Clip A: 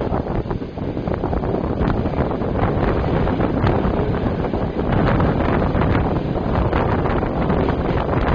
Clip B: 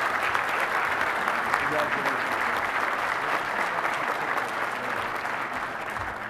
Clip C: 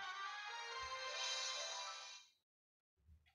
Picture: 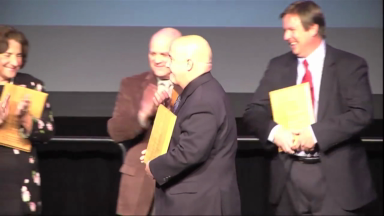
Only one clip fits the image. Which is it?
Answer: B